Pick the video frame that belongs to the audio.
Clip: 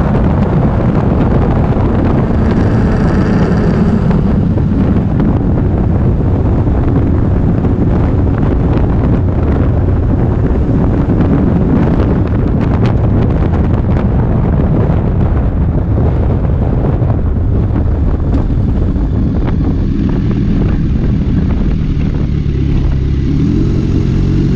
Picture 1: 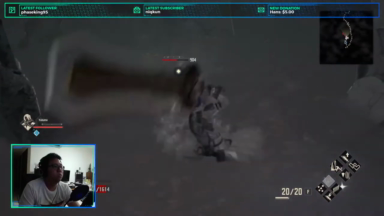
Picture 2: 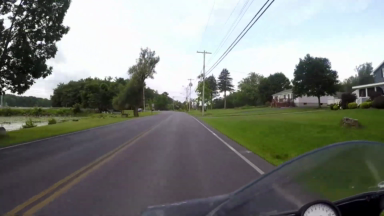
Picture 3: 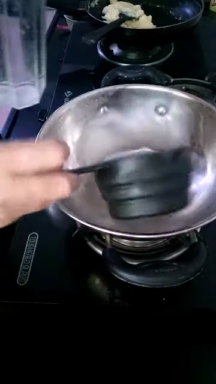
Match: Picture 2